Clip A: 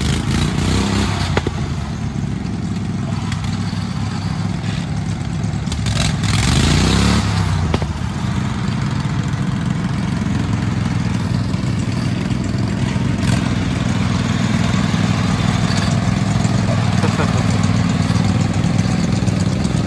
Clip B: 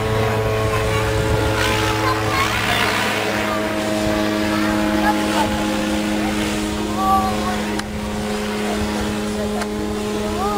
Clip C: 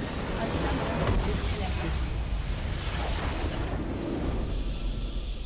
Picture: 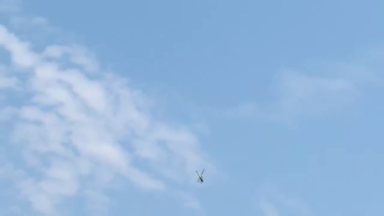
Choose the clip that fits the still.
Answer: B